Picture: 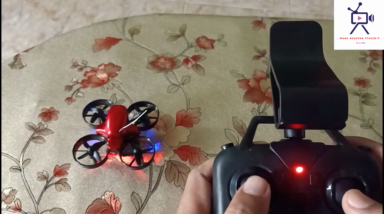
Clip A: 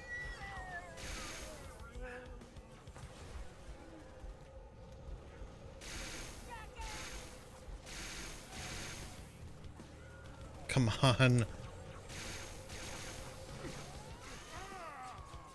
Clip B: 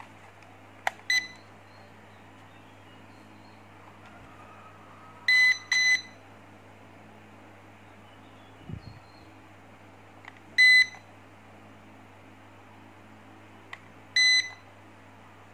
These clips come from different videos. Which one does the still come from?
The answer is B